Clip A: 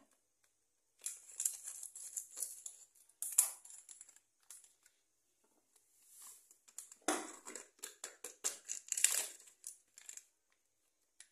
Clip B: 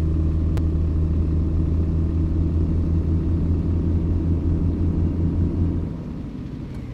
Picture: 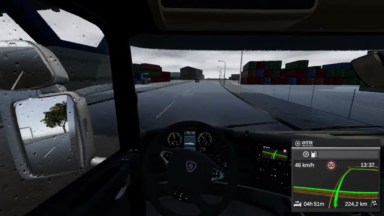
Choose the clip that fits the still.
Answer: B